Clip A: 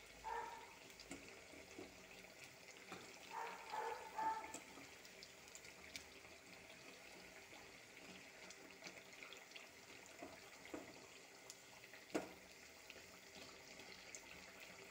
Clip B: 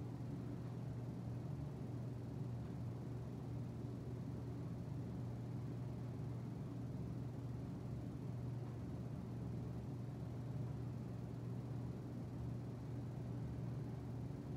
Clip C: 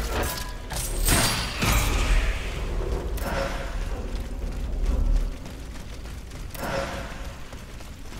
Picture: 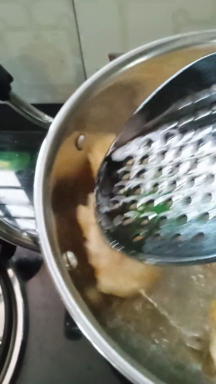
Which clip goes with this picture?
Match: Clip A